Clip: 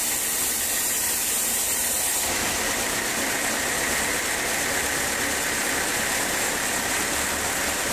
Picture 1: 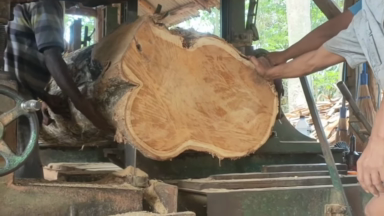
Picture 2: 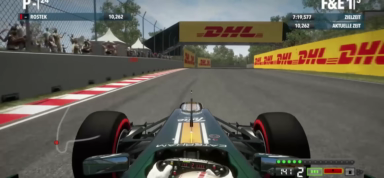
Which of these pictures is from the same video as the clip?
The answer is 1